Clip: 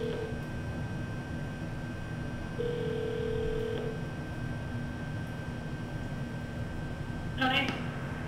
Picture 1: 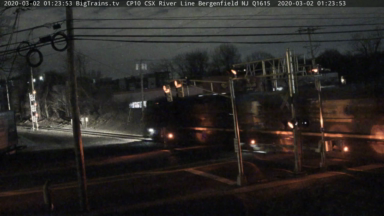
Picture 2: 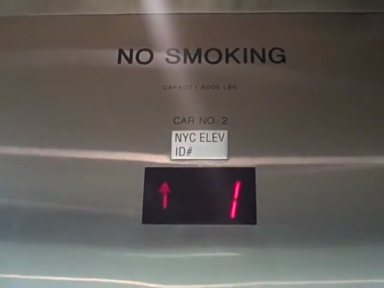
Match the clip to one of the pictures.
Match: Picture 2